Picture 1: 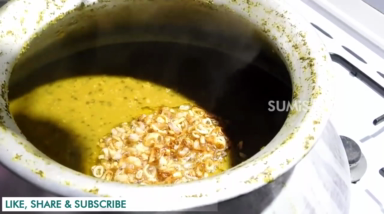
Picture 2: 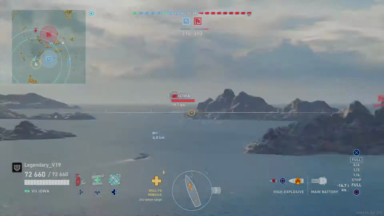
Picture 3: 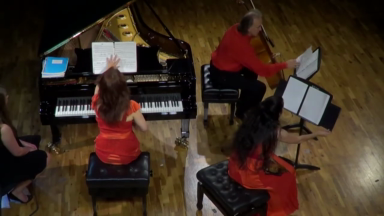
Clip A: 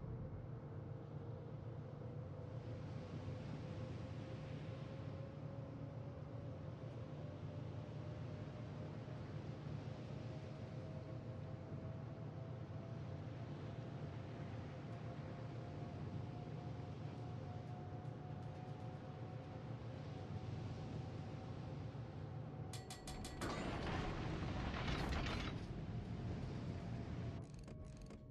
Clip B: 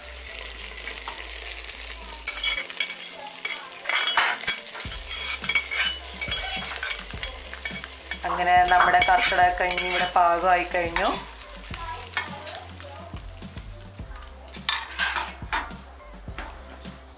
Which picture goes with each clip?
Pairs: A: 2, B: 1